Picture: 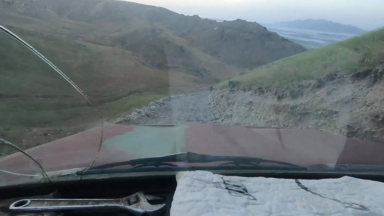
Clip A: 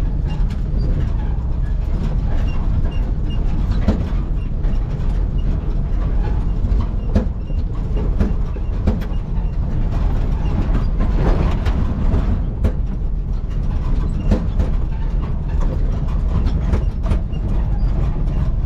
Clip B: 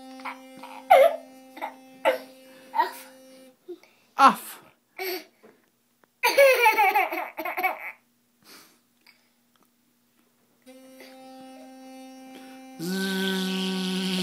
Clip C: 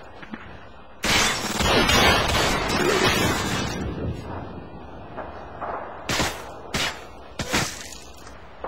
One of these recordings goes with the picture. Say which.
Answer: A